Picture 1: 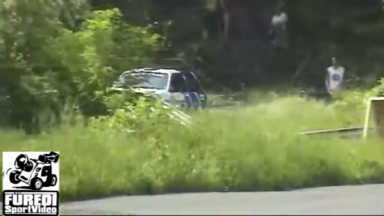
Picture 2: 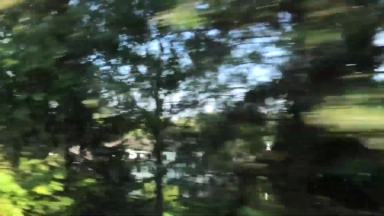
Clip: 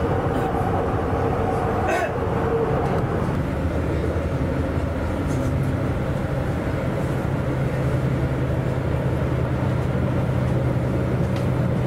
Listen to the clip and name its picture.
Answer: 2